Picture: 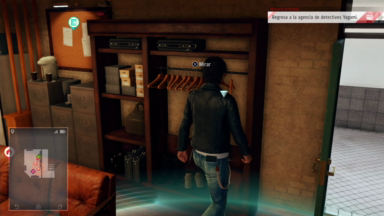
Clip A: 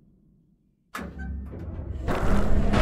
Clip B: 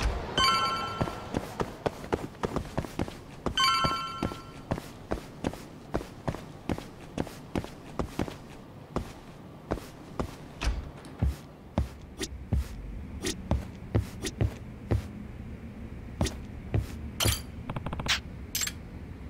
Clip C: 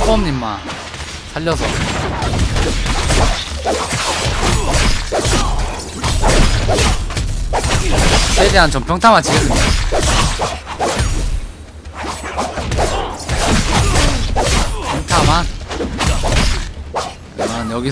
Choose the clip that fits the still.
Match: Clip B